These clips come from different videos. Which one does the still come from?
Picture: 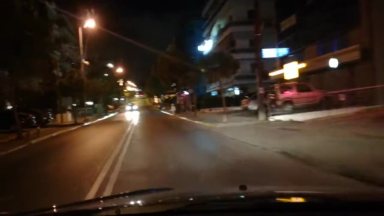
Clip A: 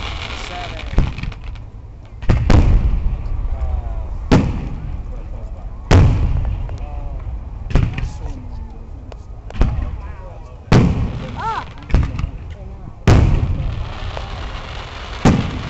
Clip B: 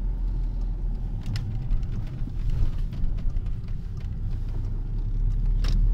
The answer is B